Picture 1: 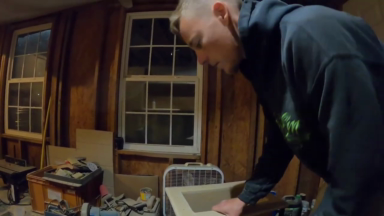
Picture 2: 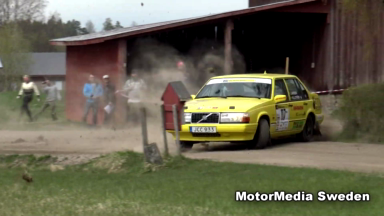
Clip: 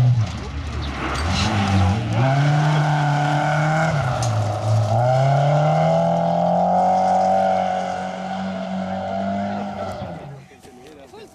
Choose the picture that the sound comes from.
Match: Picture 2